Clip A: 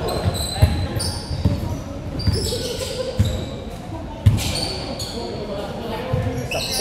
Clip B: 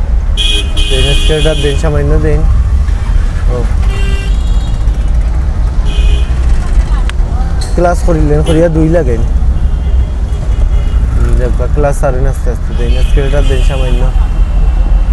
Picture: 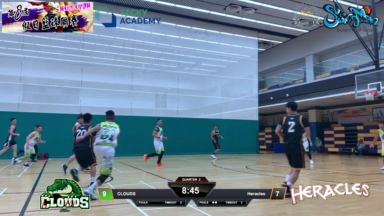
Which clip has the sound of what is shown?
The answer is A